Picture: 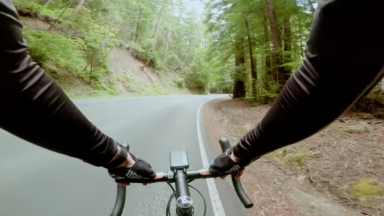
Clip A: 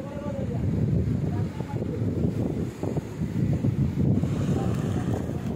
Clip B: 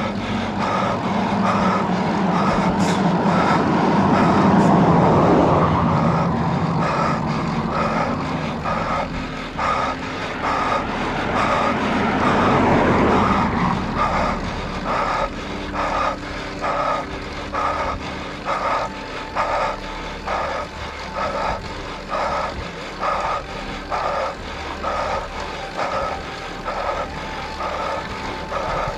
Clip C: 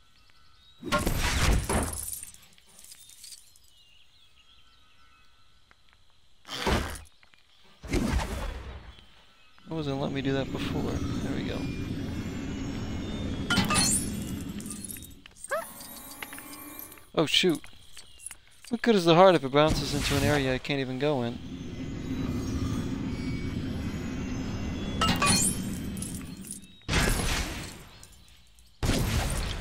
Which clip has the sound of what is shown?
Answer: B